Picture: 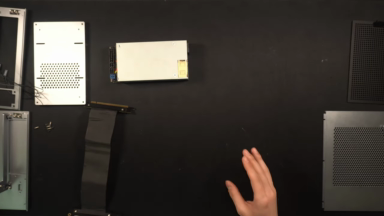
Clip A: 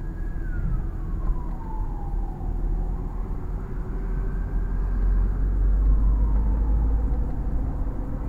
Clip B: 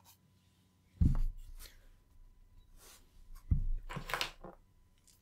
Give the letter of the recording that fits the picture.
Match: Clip B